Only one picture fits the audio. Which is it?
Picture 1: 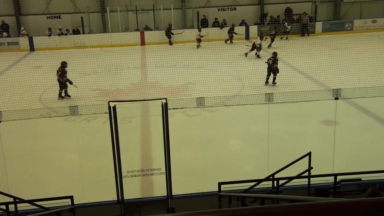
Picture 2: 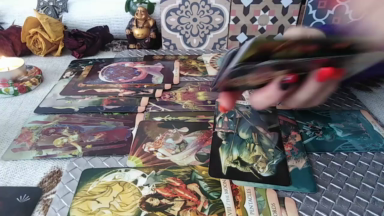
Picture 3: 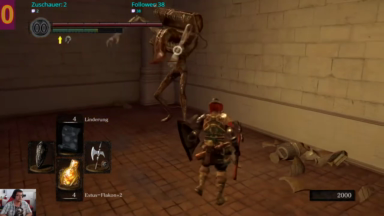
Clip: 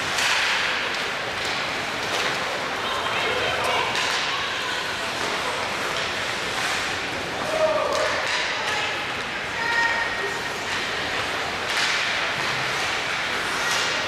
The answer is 1